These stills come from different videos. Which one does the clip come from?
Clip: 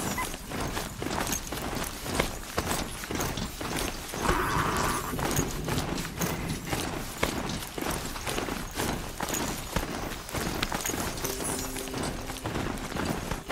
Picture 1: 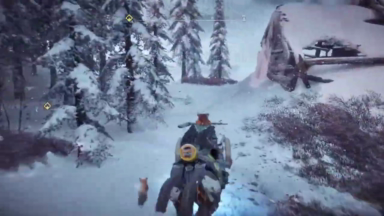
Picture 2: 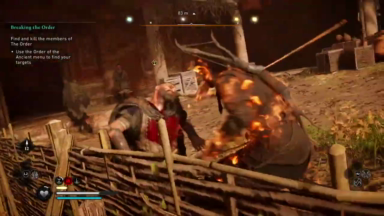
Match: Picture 1